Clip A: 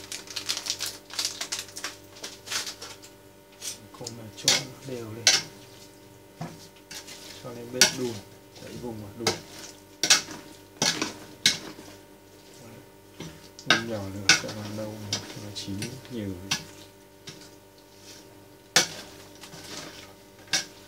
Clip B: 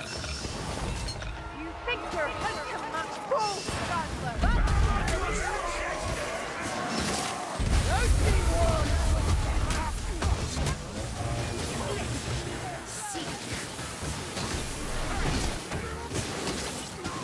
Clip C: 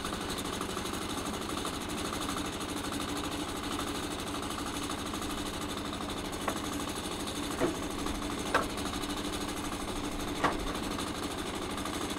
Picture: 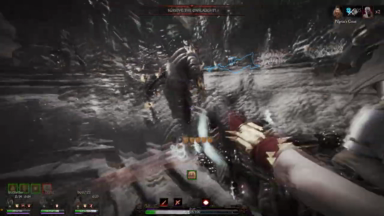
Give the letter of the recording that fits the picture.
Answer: B